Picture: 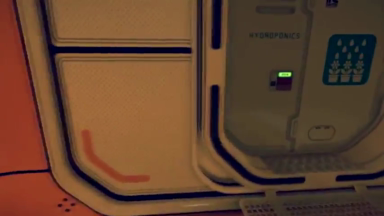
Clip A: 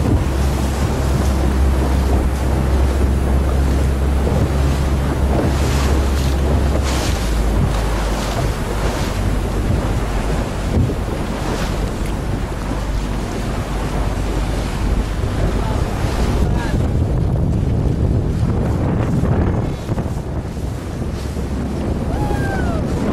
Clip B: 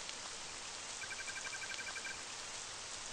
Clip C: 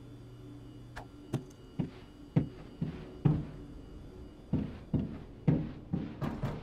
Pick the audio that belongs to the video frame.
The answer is C